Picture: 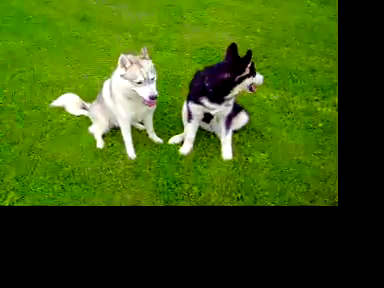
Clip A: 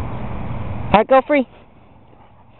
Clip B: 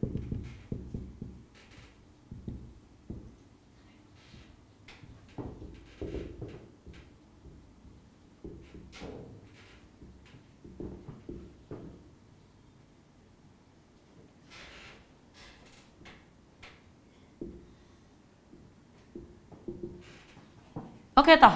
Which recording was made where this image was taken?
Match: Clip A